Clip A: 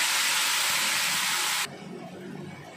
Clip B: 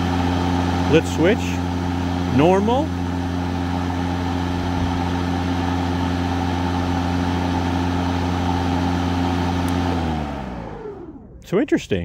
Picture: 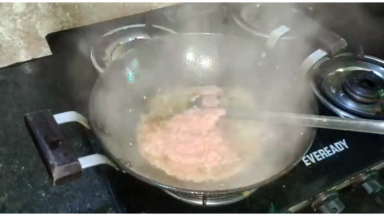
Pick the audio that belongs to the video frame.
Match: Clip A